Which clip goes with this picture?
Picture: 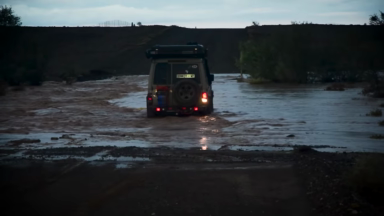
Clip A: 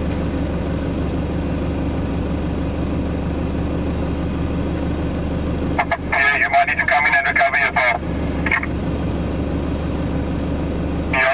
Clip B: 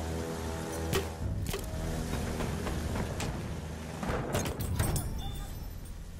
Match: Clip A